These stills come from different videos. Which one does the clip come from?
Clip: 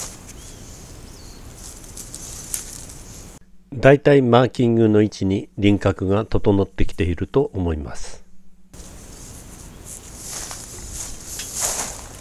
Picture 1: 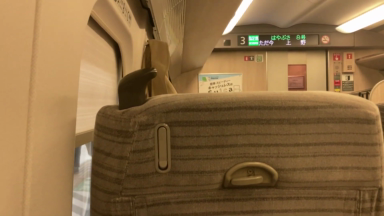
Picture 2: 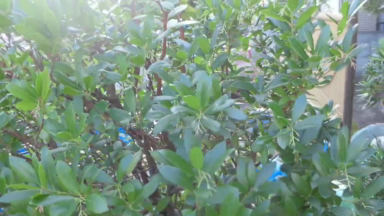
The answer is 2